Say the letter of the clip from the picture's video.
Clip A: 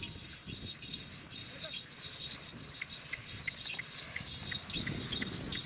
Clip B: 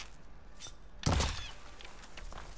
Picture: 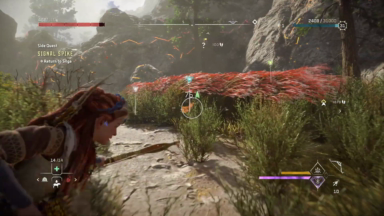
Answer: B